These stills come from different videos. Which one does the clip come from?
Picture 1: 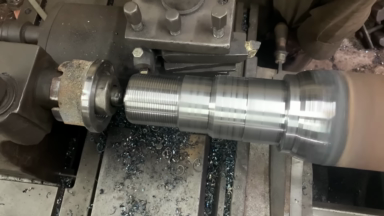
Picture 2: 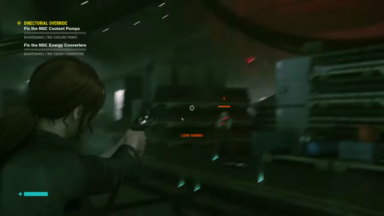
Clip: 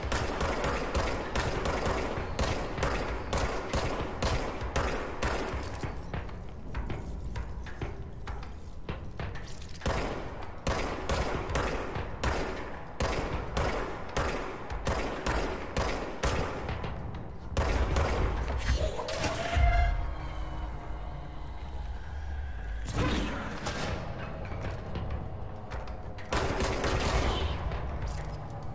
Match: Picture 2